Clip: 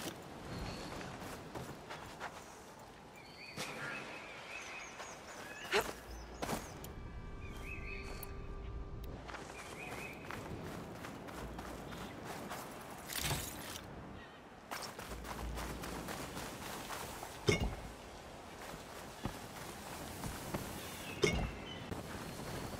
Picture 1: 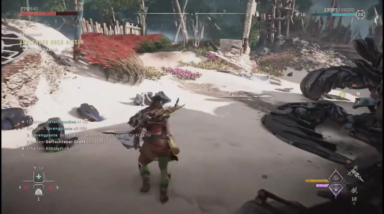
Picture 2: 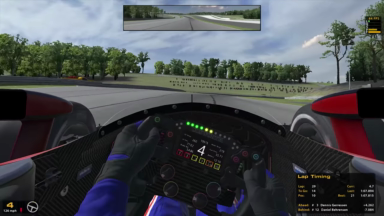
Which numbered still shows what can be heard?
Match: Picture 1